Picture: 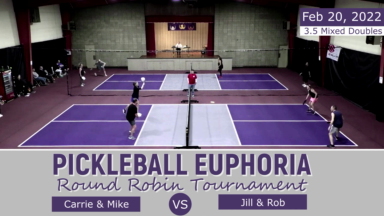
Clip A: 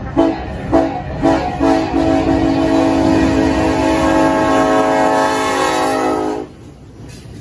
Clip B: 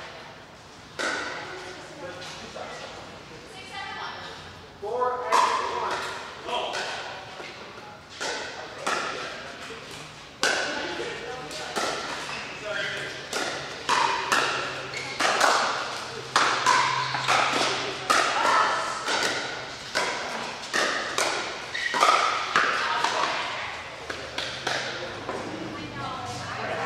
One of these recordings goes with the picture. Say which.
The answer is B